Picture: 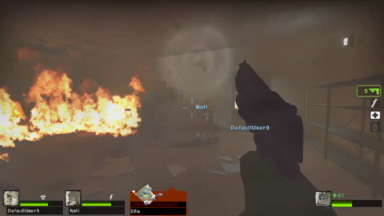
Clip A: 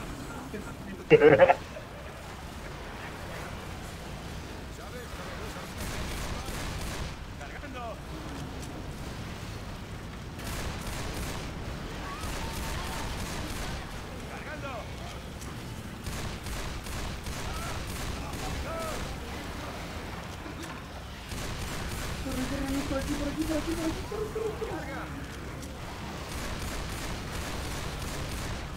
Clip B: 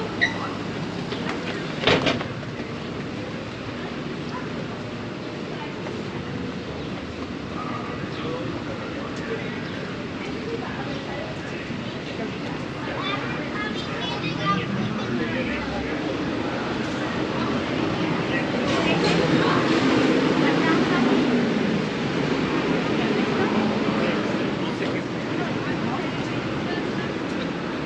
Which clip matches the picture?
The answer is A